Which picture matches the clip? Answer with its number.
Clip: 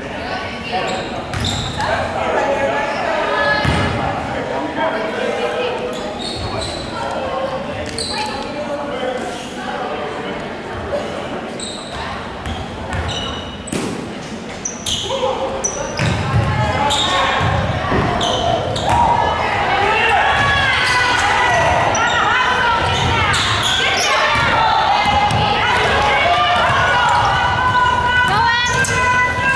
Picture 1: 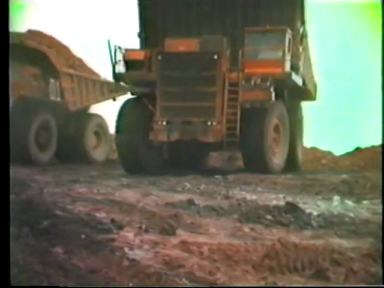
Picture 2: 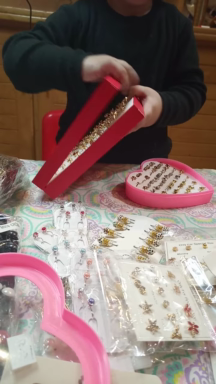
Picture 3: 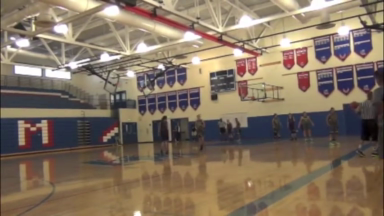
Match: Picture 3